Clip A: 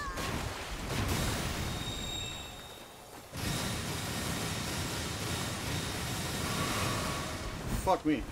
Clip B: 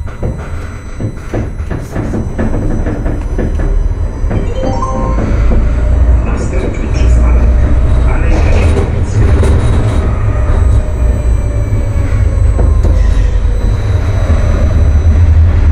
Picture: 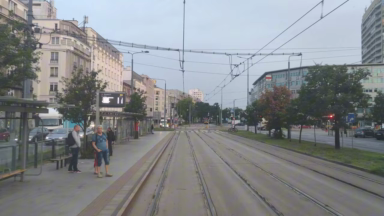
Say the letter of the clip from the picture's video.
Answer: B